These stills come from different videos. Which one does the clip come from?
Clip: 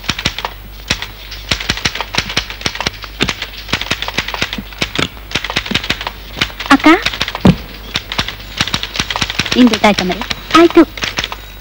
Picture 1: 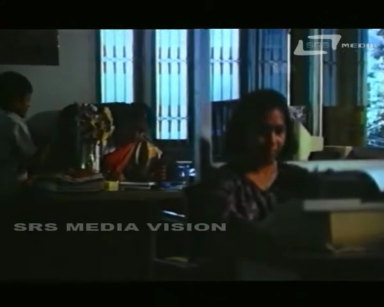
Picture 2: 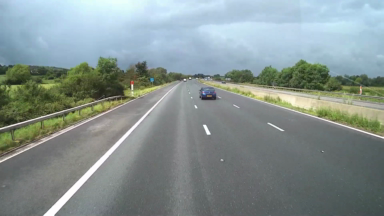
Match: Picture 1